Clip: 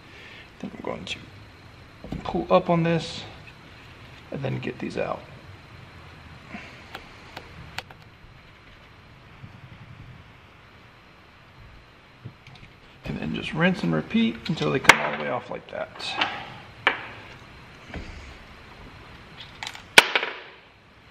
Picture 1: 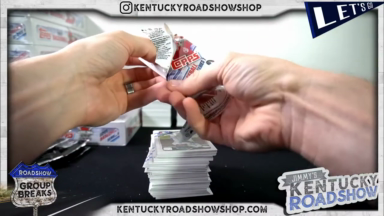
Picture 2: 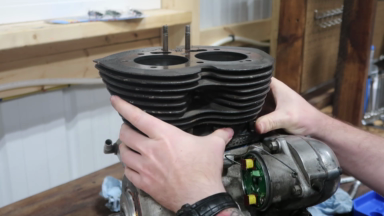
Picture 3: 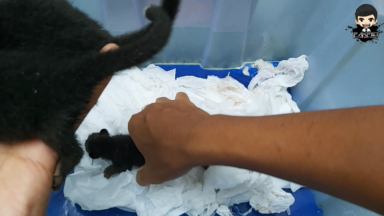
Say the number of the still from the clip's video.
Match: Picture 2